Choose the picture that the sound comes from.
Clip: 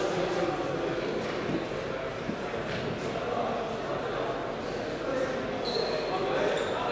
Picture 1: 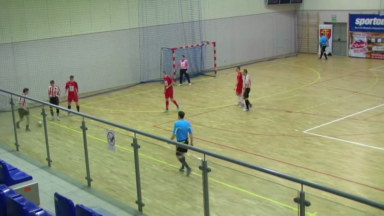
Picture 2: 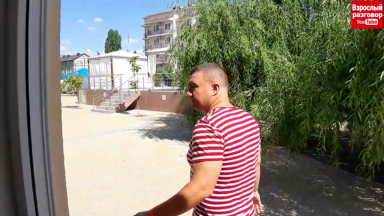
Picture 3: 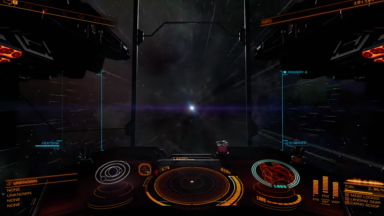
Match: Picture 1